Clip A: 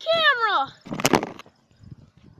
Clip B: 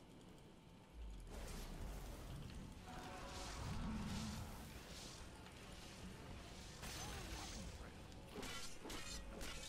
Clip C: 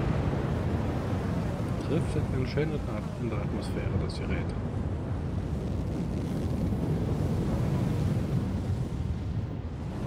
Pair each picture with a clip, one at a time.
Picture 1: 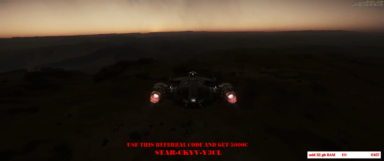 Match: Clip C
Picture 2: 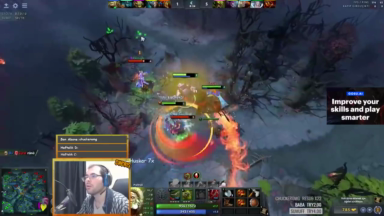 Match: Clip B